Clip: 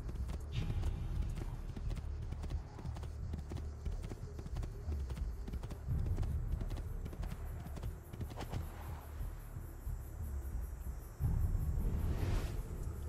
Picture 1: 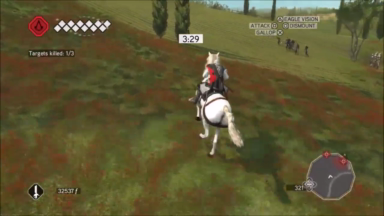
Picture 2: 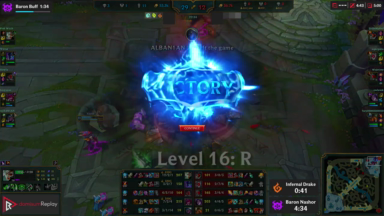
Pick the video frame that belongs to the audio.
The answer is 1